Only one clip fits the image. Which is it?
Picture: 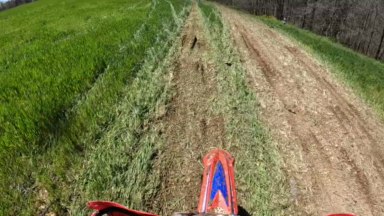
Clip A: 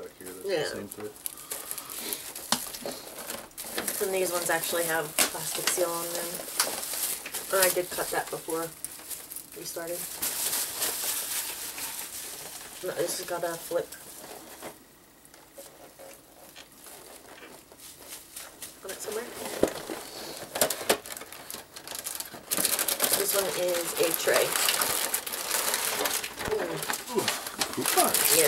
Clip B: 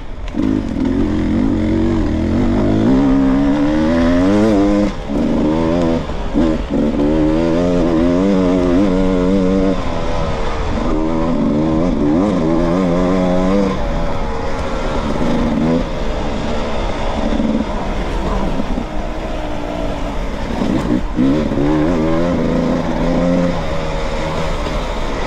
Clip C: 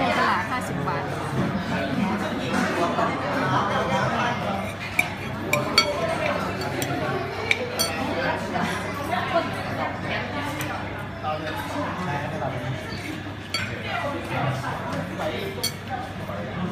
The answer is B